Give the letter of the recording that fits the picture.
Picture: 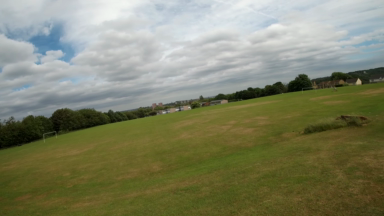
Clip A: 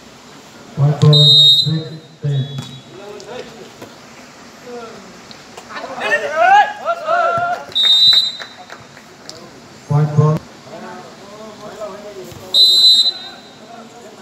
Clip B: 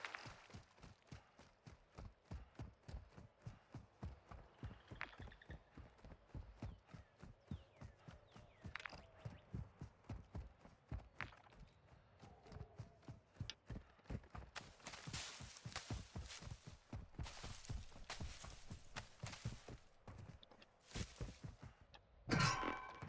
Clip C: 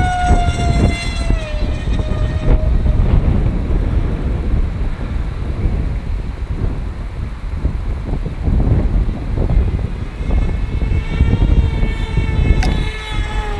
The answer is C